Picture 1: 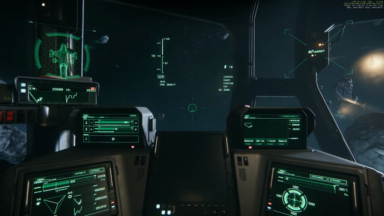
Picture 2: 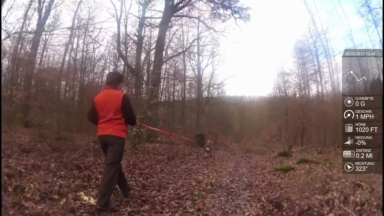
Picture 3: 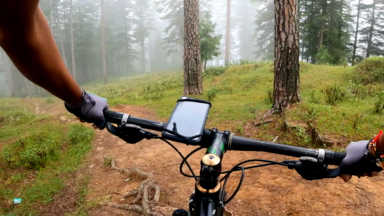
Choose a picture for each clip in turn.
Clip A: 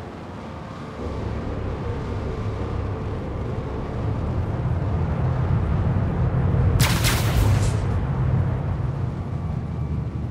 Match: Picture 1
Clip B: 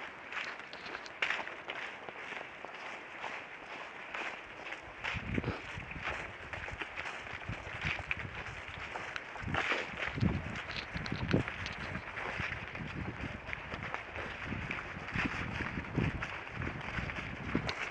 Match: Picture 2